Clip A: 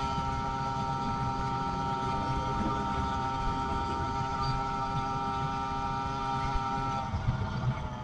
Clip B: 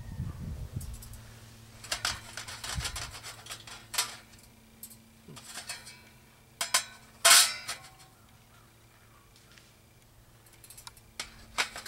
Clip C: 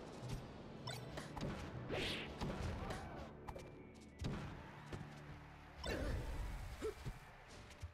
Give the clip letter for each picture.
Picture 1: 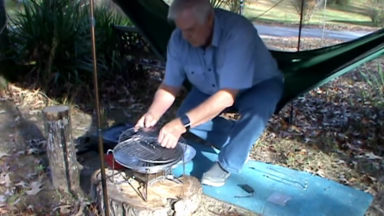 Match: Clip B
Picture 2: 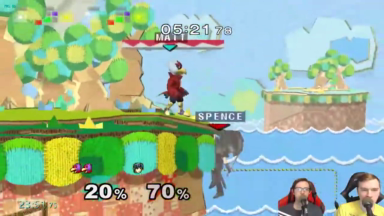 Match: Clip C